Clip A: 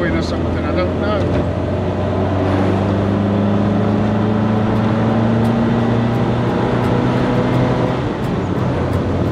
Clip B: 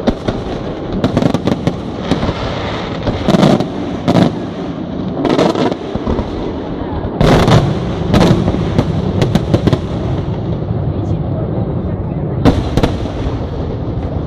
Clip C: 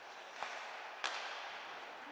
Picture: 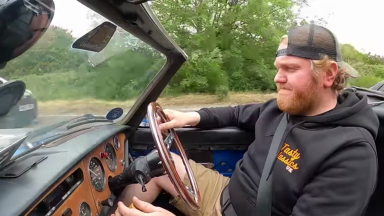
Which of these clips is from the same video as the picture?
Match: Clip A